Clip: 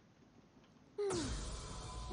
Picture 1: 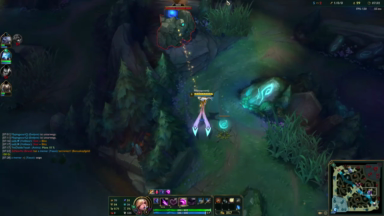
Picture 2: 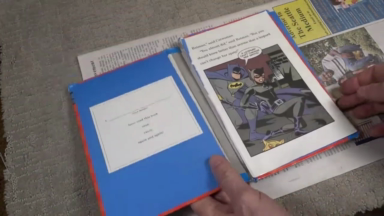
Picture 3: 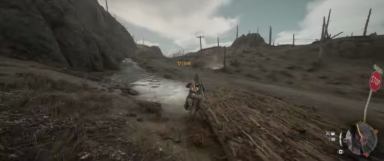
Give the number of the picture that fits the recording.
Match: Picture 1